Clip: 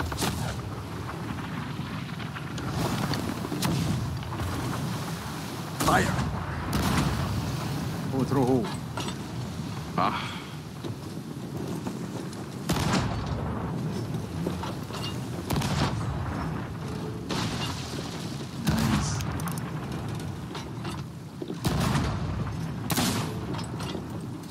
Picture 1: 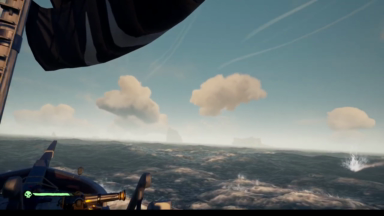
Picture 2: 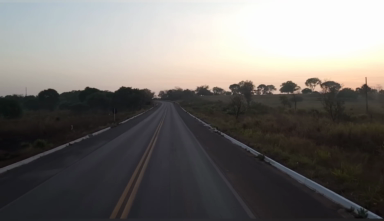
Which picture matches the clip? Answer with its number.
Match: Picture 1